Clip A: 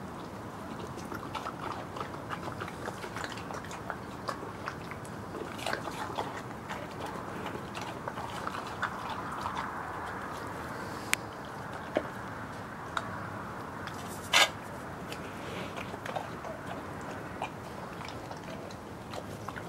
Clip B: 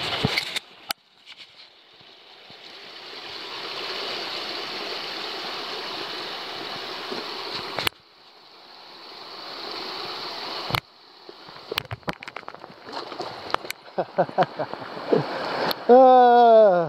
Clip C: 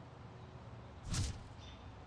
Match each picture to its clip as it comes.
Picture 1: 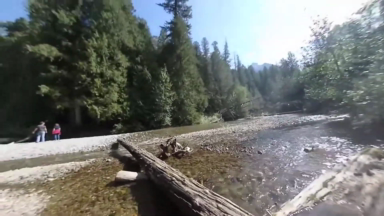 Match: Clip B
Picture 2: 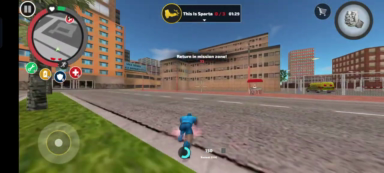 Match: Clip C